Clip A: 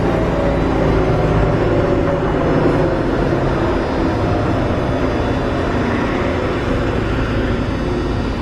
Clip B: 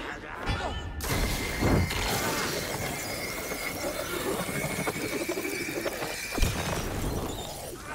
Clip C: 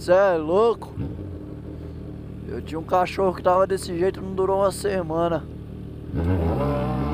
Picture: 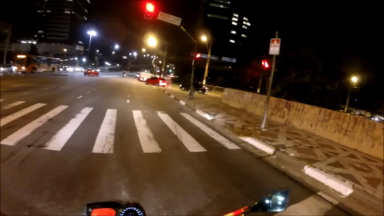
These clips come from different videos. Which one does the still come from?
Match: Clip C